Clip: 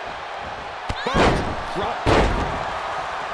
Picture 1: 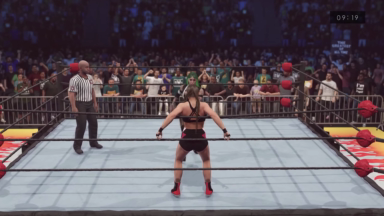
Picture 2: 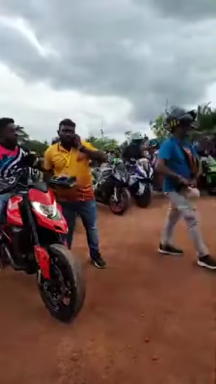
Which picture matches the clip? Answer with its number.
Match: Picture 1